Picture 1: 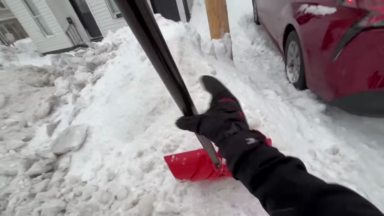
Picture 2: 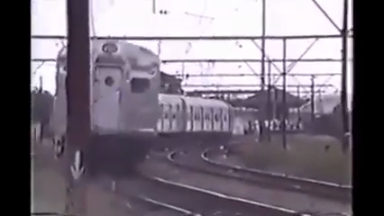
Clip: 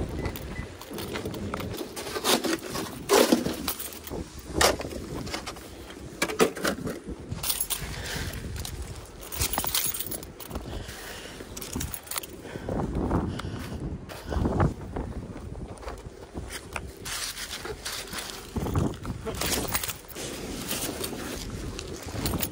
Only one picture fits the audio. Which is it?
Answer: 1